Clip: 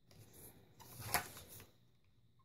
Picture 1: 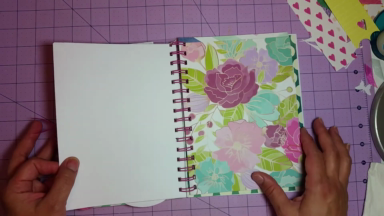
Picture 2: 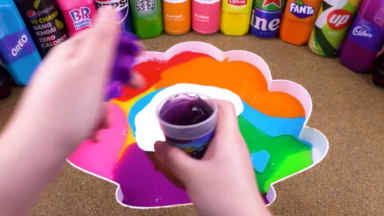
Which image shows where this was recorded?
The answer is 1